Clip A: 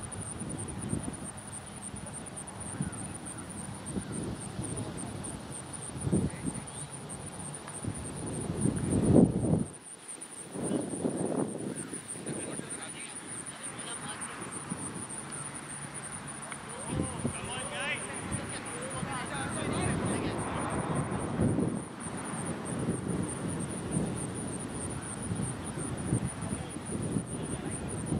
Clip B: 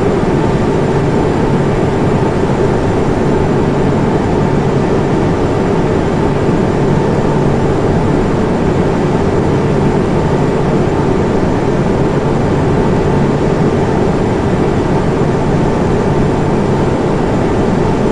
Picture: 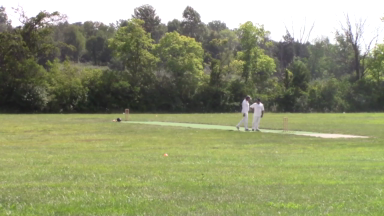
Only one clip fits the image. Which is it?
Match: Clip A